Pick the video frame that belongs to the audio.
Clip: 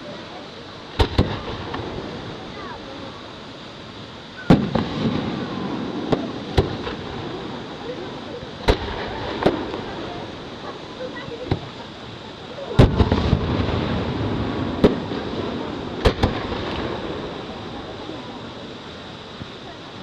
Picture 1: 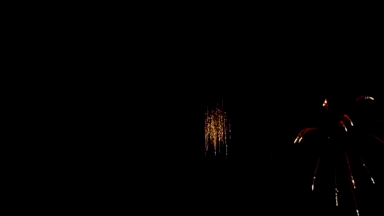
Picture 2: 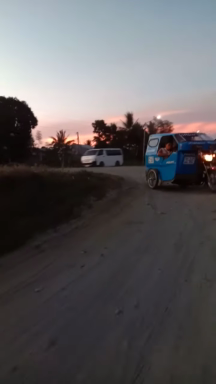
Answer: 1